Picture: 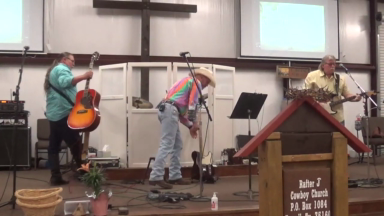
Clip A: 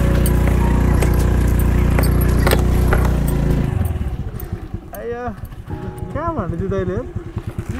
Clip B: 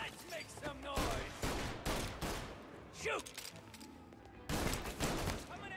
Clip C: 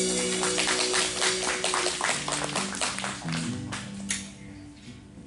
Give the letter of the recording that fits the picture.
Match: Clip C